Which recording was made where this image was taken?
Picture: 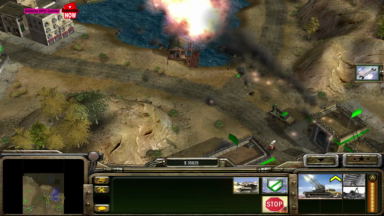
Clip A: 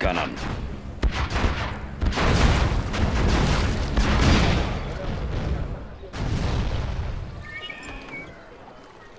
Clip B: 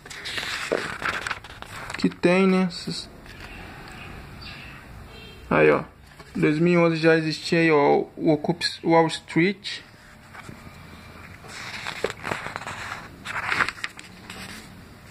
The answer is A